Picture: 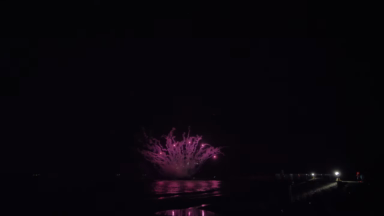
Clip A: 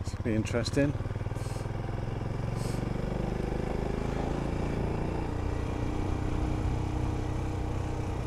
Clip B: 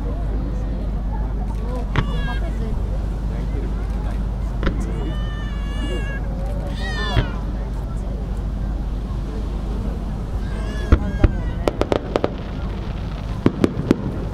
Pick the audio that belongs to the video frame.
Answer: B